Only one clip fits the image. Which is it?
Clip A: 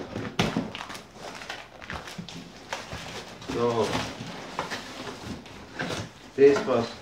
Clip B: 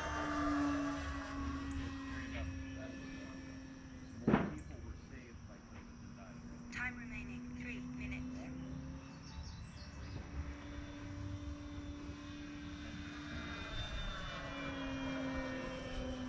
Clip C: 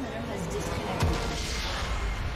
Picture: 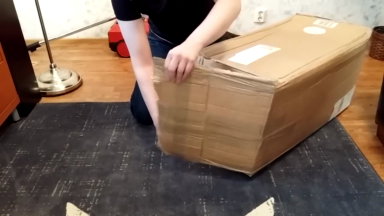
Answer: A